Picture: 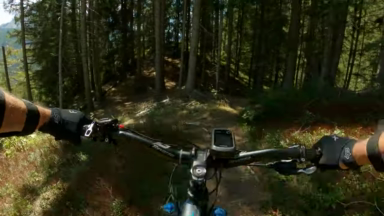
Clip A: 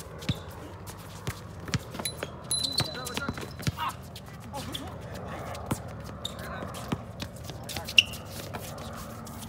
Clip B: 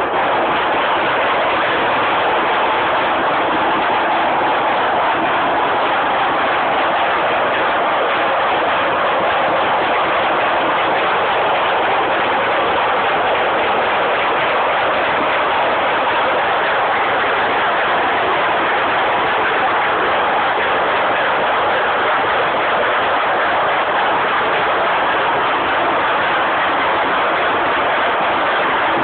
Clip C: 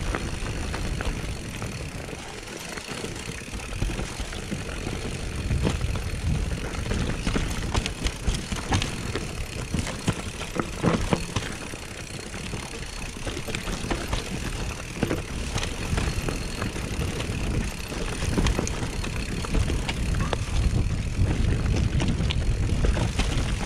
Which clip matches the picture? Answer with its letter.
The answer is C